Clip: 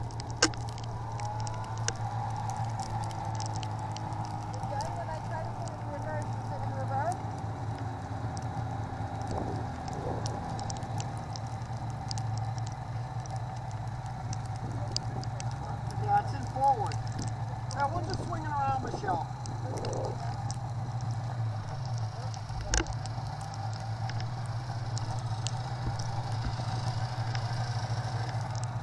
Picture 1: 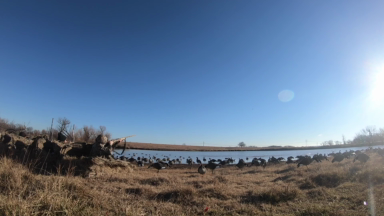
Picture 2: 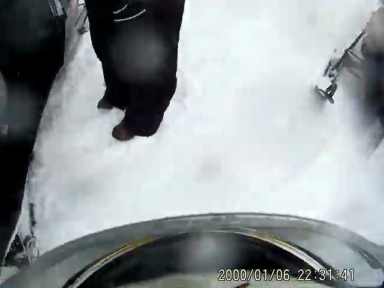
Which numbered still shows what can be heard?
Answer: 2